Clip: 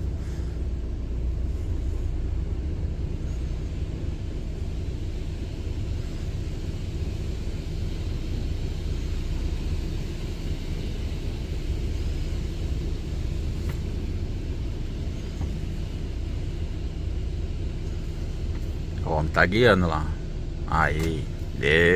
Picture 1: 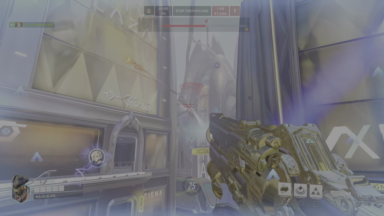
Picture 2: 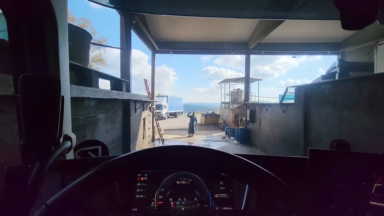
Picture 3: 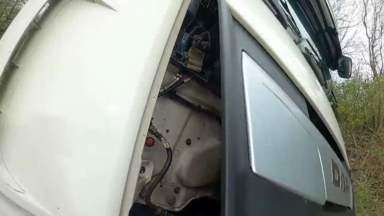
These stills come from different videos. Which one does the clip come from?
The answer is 2